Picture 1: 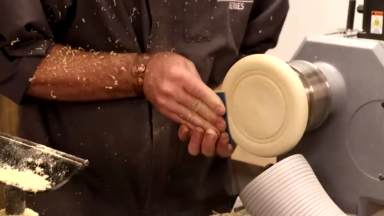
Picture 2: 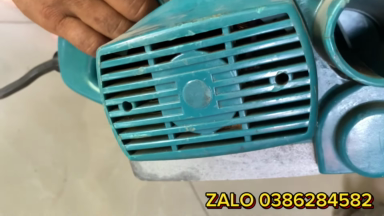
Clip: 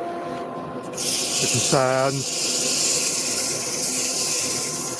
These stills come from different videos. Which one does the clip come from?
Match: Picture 1